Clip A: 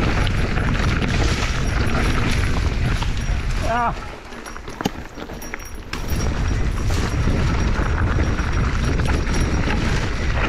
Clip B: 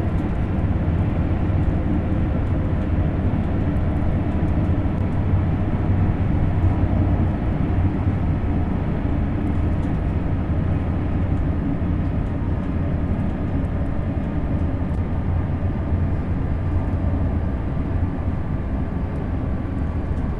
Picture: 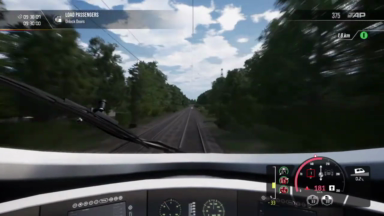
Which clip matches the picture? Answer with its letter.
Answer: B